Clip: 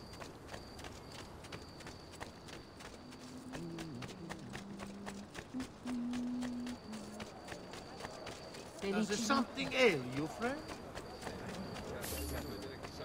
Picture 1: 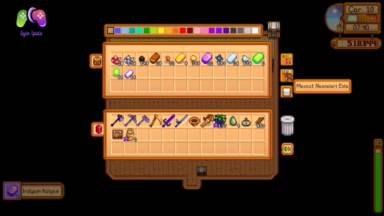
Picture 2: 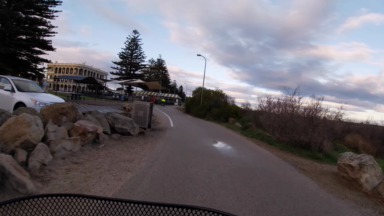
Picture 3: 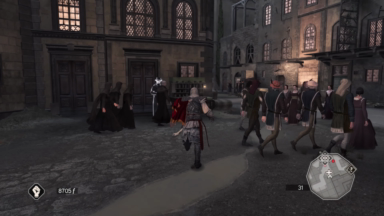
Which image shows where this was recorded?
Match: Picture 3